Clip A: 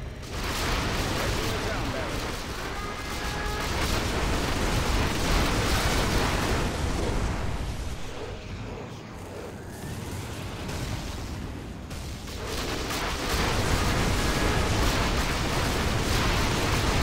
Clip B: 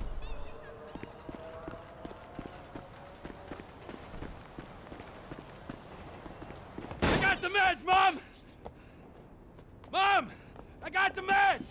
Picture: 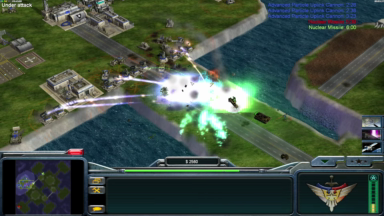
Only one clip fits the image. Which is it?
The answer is A